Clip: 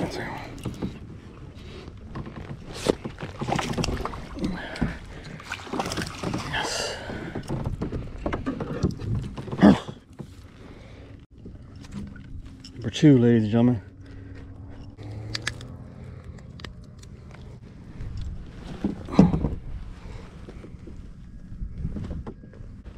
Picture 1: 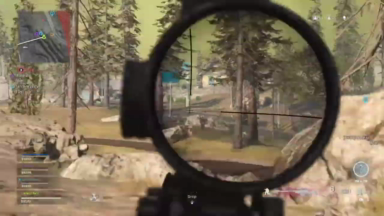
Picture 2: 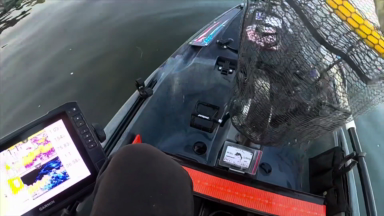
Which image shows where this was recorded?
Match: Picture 2